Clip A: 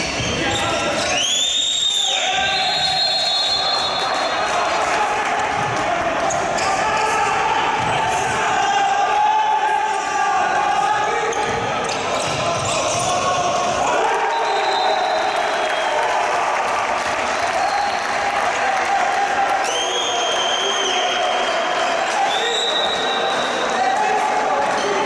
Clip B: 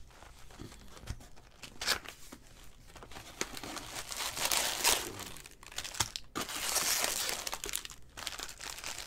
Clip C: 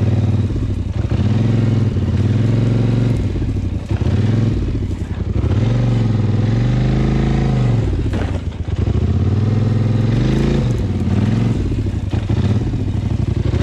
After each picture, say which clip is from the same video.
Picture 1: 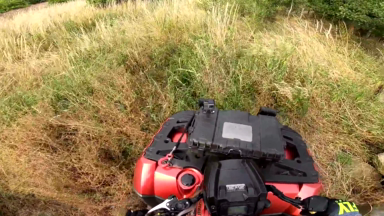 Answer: C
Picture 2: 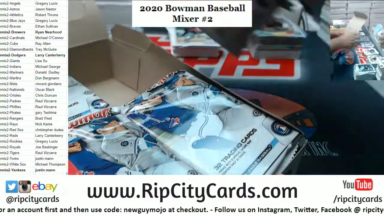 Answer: B